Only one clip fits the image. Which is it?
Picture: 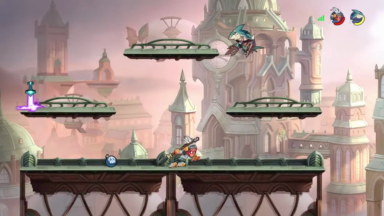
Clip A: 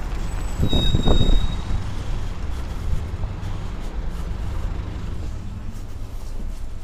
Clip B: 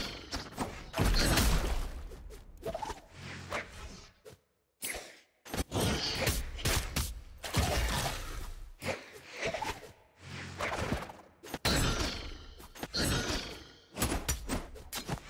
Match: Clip B